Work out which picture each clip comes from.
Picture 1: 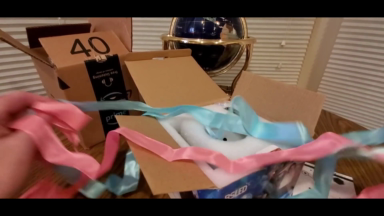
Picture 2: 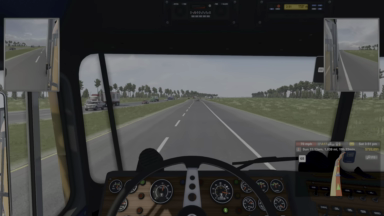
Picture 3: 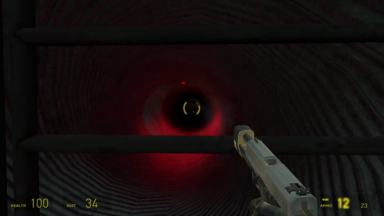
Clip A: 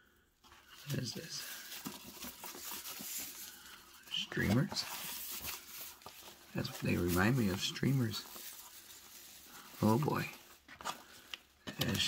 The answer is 1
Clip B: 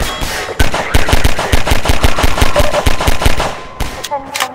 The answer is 3